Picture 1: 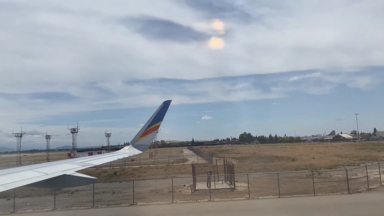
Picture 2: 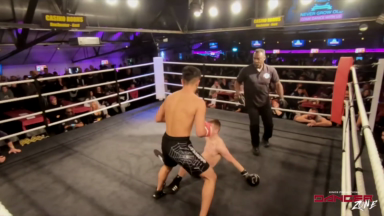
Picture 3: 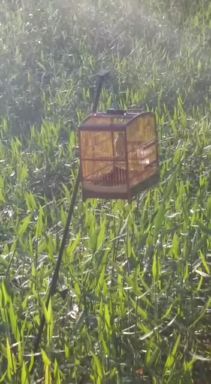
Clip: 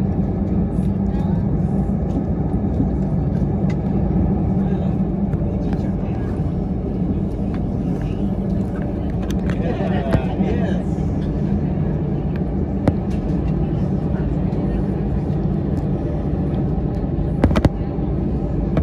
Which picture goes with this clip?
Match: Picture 1